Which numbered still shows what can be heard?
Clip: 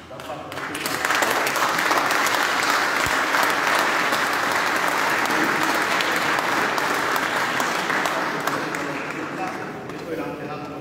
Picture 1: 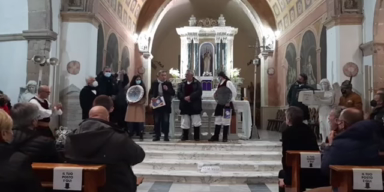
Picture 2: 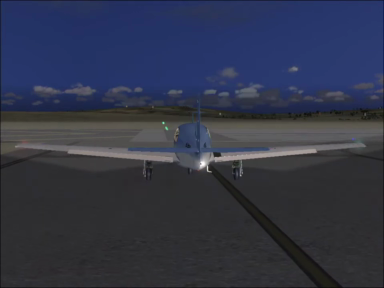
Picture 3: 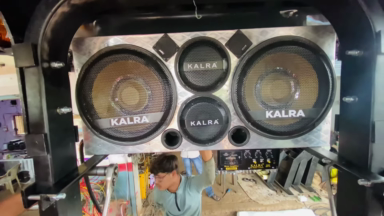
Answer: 1